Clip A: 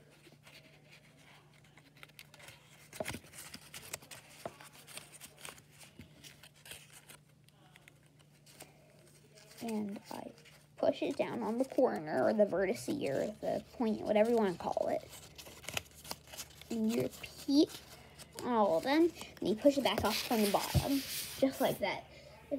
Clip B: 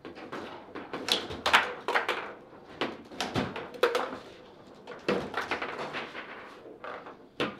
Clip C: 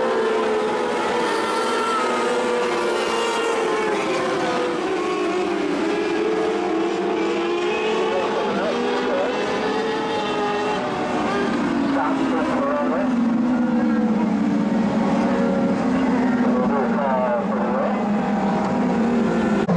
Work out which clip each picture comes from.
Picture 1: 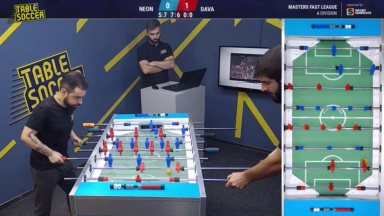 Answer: B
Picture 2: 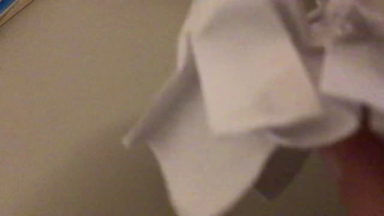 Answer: A